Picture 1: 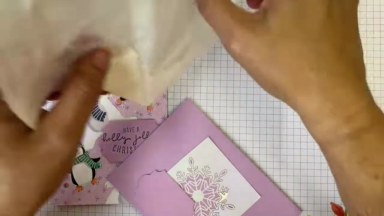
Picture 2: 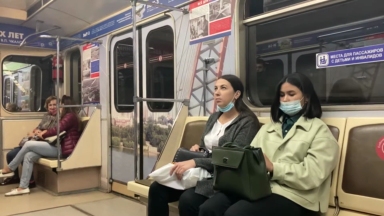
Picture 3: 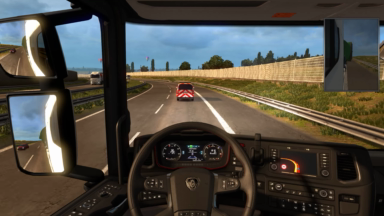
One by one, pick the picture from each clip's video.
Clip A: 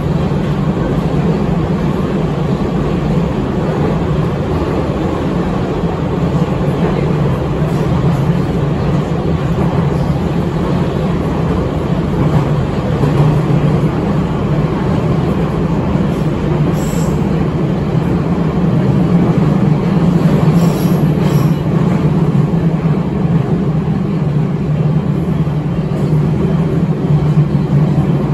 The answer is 2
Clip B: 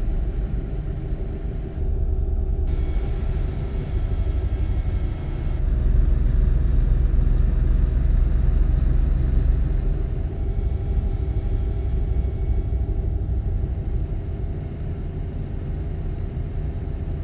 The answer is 3